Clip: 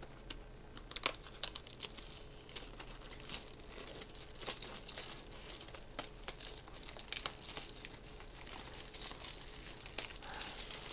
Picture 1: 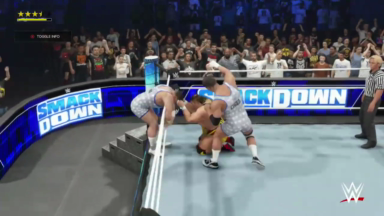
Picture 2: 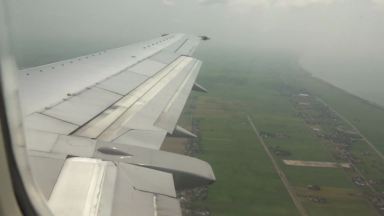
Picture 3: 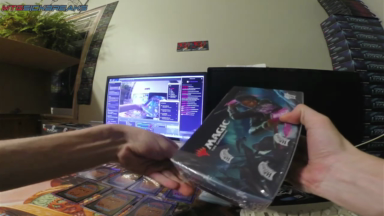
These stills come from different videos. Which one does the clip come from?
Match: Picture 3